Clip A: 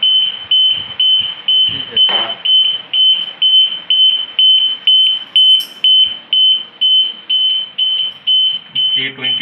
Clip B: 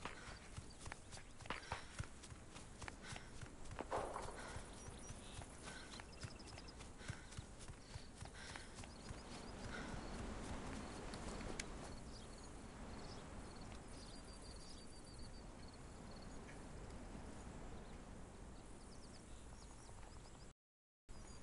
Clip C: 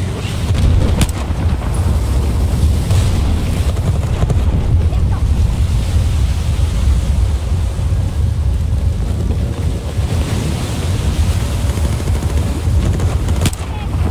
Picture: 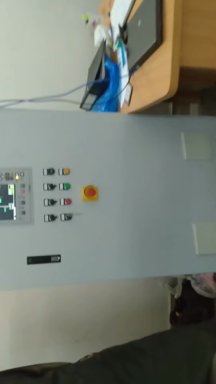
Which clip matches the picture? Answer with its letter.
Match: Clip A